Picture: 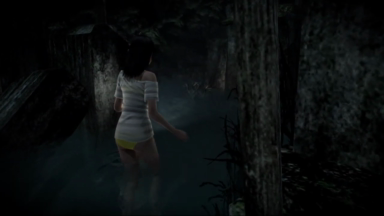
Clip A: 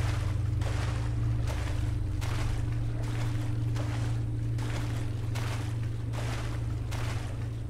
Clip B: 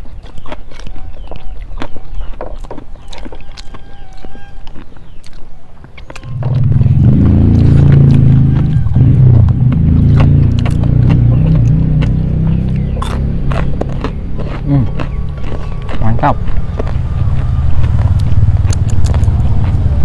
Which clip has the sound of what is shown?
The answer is A